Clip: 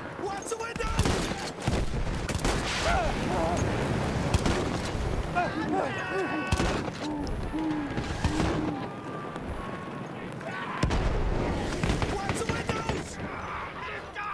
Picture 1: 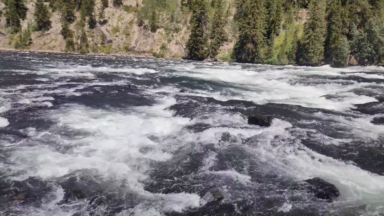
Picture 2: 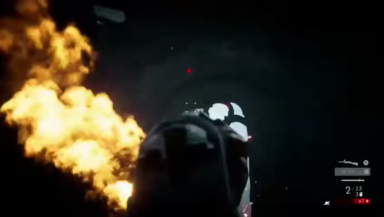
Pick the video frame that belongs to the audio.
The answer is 2